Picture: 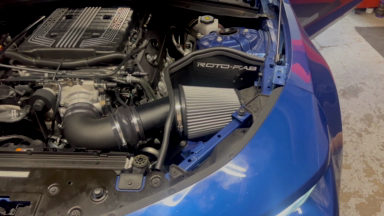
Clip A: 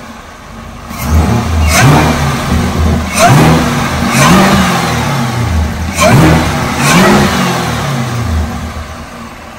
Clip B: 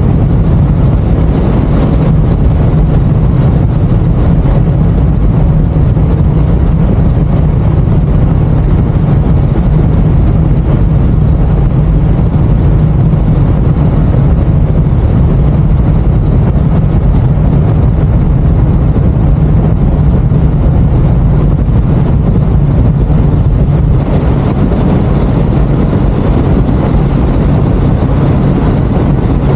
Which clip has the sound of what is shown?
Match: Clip A